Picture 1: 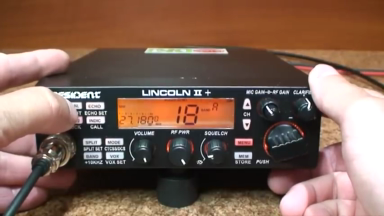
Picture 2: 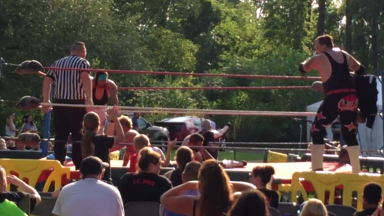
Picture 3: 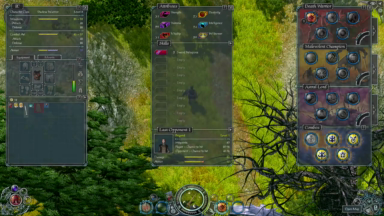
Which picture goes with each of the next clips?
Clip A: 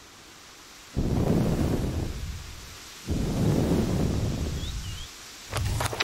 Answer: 3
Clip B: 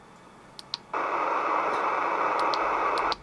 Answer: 1